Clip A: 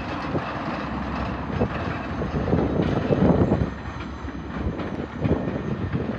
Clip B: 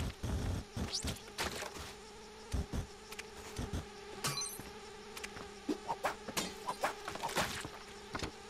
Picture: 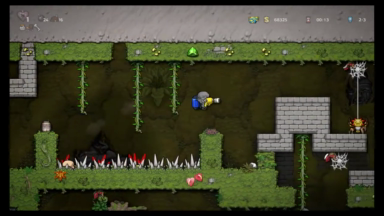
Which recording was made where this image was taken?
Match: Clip B